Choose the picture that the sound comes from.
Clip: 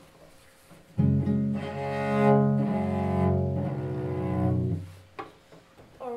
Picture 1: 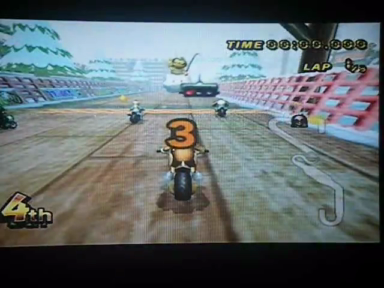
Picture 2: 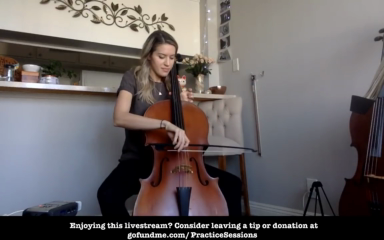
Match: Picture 2